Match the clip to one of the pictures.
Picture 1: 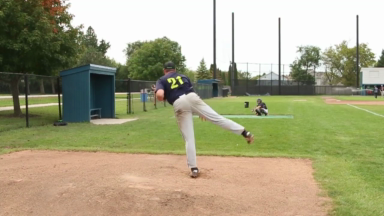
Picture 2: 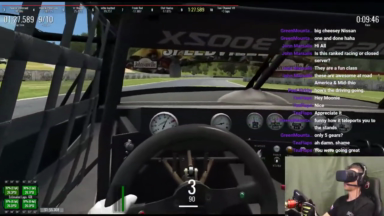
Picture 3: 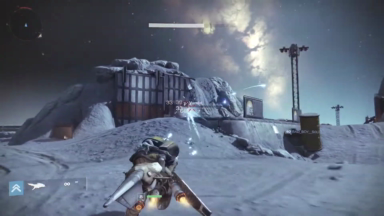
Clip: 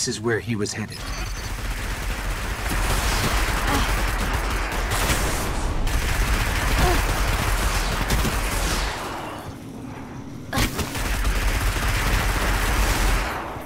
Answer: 3